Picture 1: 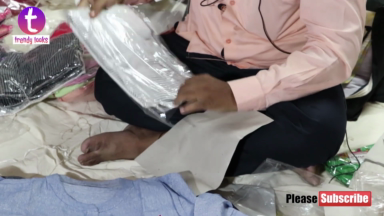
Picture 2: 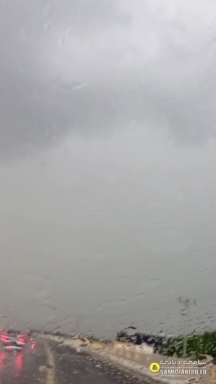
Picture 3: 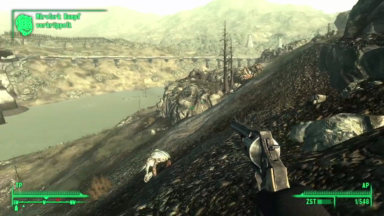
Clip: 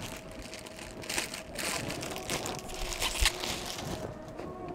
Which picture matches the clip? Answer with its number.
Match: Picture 1